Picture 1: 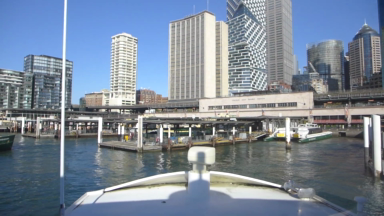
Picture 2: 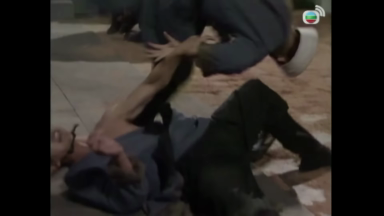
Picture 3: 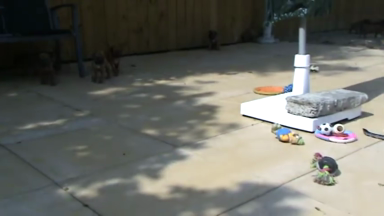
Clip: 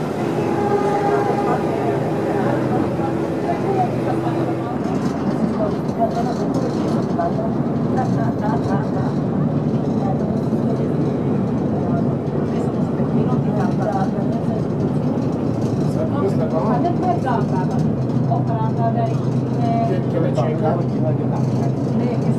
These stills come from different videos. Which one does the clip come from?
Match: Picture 1